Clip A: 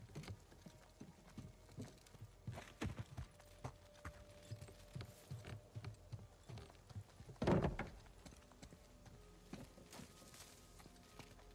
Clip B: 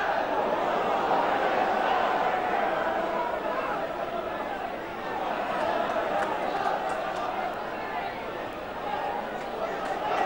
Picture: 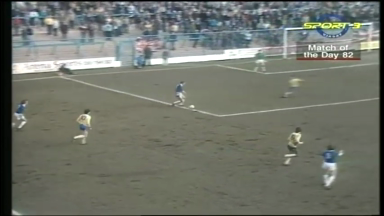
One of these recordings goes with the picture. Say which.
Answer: B